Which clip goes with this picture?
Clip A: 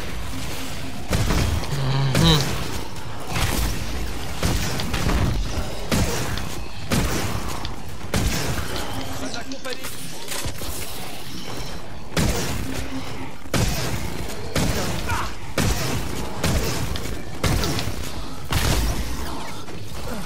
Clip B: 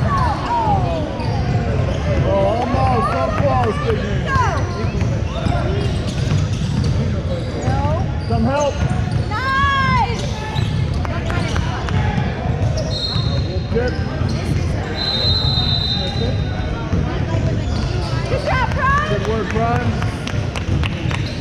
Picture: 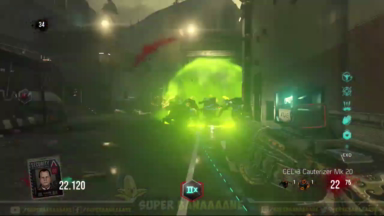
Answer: A